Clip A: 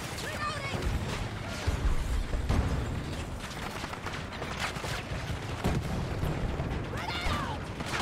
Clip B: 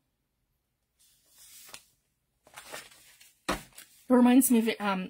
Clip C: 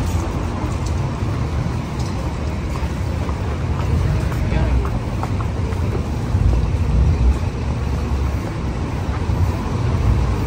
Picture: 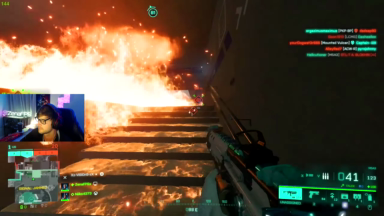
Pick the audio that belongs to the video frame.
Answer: A